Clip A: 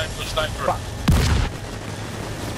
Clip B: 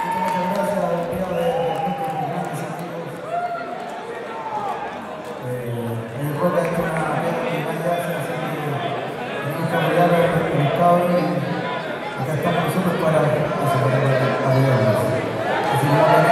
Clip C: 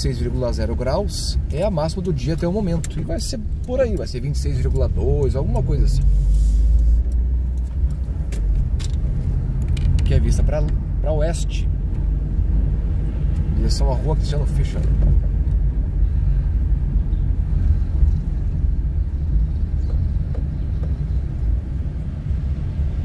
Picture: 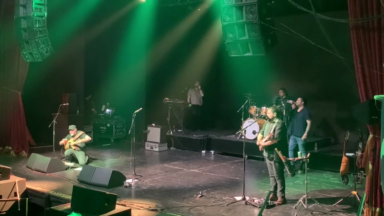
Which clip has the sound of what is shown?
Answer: B